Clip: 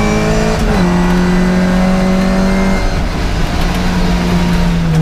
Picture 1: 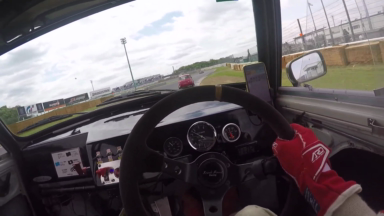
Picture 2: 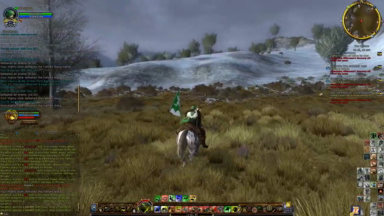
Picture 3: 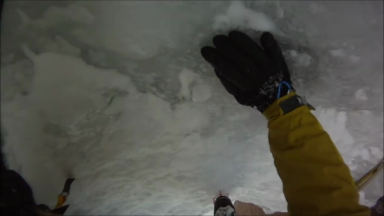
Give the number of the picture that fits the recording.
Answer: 1